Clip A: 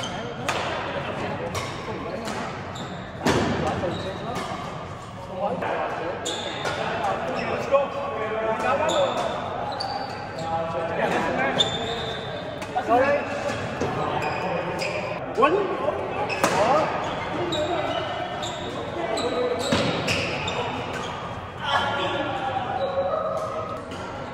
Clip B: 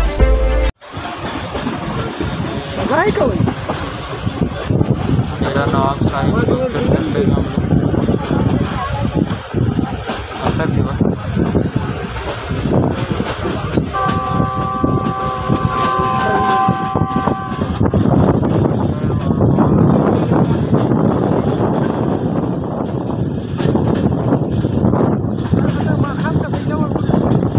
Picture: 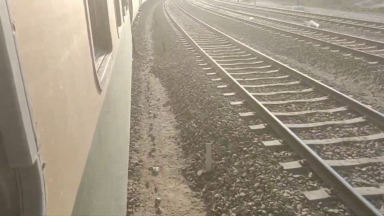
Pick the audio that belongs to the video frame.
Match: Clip B